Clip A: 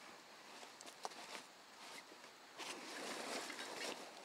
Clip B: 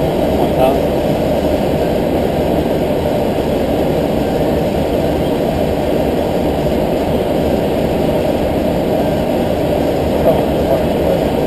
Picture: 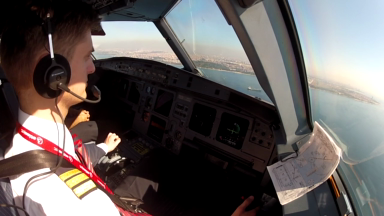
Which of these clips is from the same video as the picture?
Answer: B